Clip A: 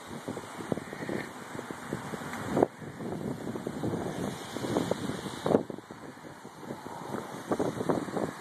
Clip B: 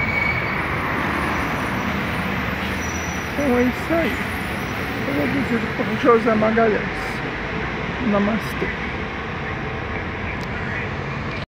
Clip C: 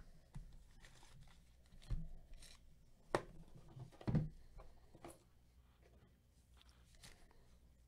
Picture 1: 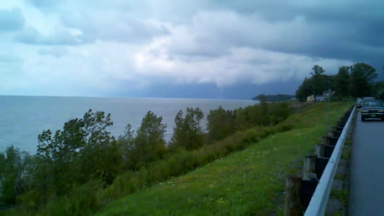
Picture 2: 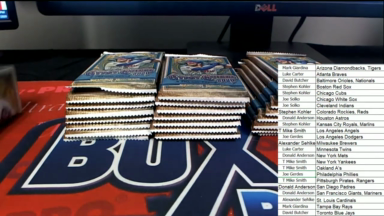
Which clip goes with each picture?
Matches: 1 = A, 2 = C